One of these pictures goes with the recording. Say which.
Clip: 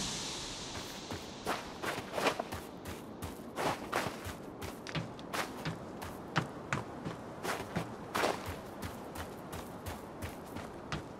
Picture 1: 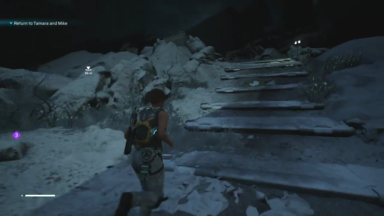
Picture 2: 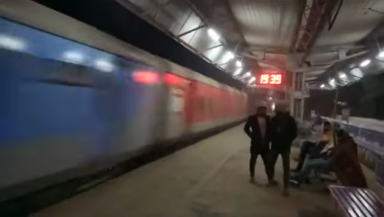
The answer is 1